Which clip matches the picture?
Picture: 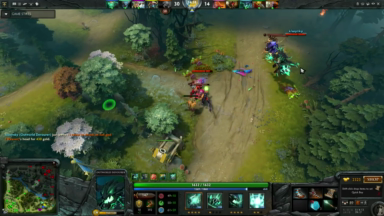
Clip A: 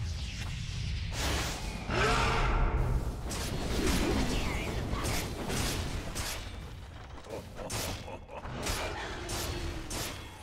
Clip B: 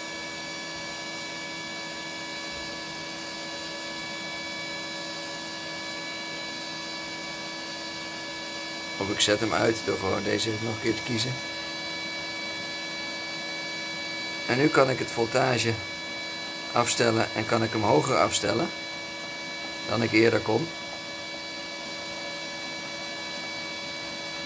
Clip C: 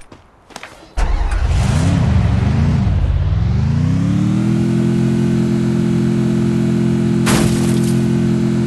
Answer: A